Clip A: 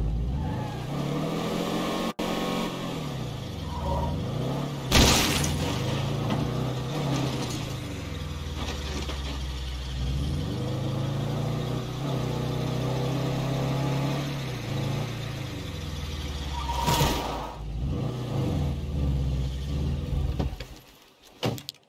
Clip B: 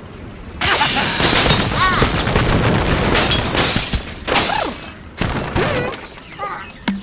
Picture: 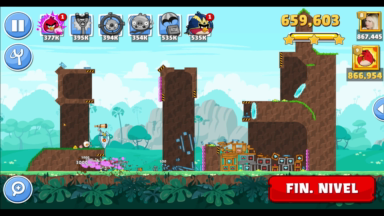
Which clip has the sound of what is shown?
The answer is B